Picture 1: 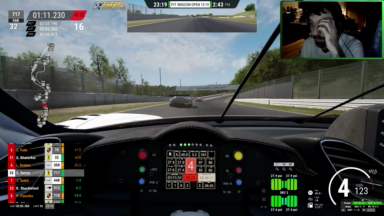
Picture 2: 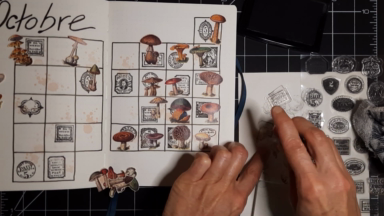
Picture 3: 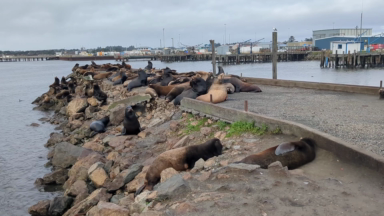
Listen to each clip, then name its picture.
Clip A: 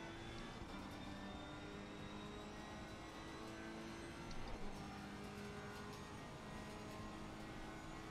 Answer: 1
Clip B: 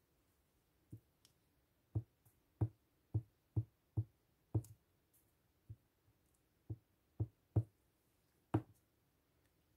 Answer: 2